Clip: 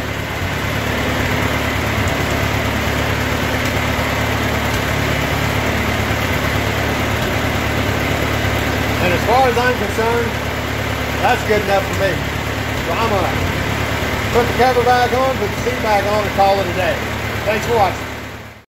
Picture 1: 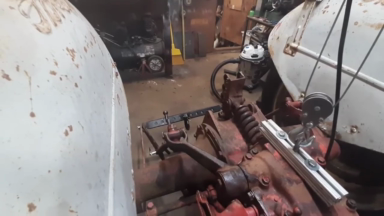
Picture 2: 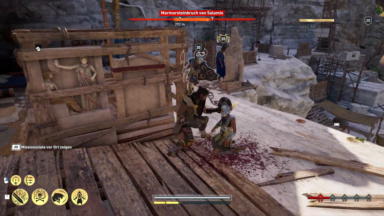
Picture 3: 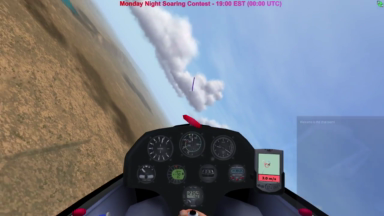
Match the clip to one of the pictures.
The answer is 1